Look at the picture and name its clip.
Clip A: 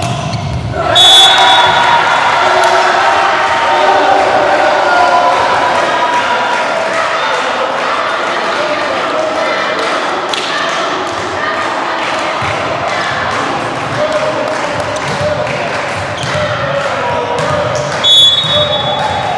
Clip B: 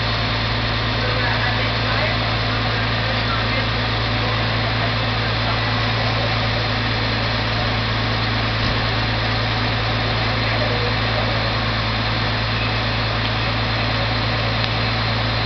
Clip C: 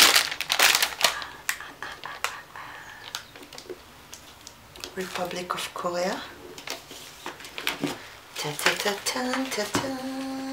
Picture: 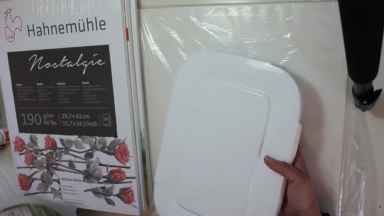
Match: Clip C